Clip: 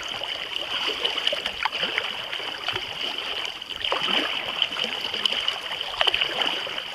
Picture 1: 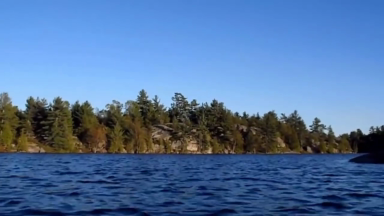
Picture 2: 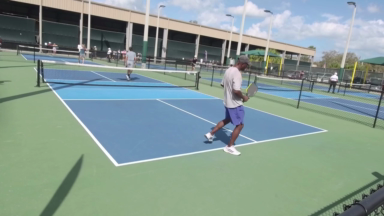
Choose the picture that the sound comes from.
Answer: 1